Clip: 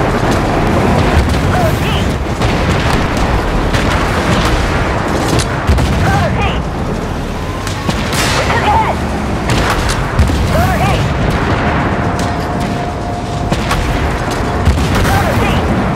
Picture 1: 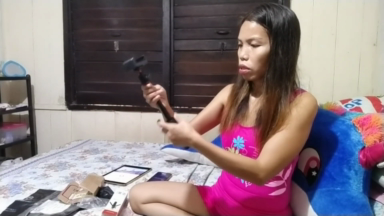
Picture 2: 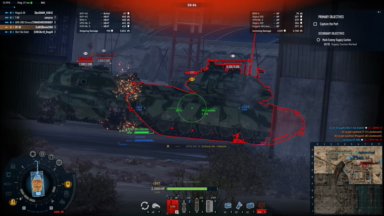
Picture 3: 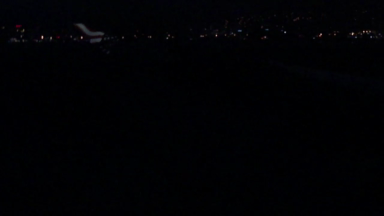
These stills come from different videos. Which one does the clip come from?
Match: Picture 2